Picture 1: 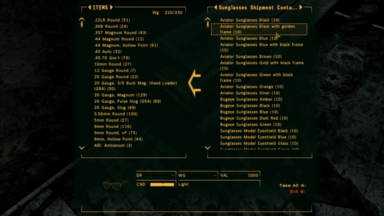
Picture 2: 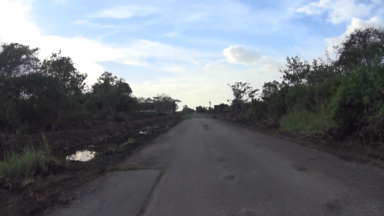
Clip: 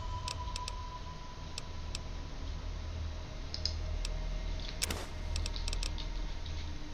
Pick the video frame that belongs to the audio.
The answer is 1